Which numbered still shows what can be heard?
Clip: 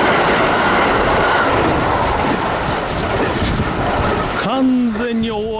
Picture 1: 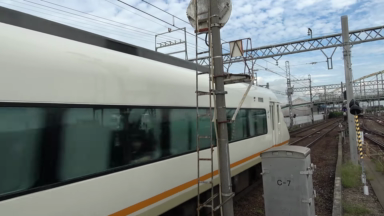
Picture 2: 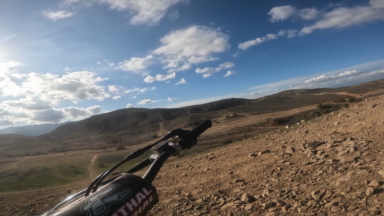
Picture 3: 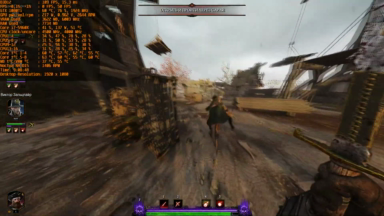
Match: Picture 1